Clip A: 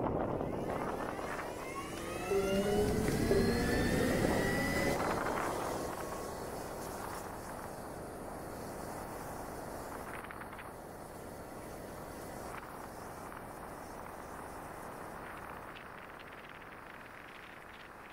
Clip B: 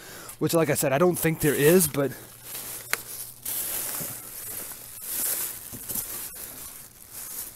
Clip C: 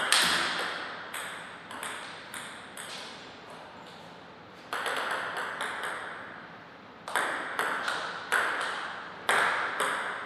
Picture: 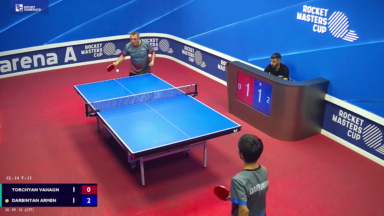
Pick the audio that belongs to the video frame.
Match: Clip C